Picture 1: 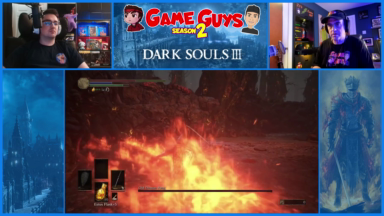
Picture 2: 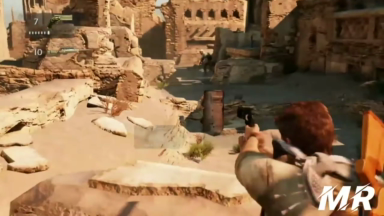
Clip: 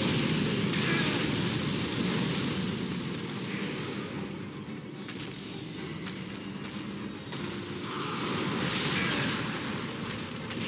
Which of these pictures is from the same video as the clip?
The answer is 1